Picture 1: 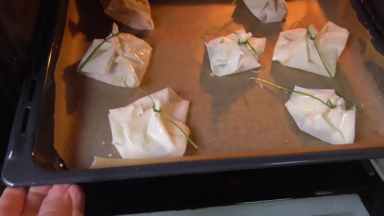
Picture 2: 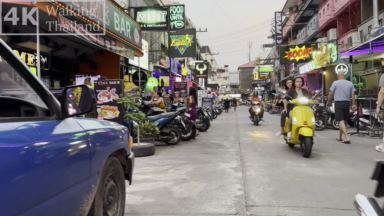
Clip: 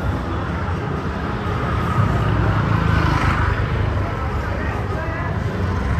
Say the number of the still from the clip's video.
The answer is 2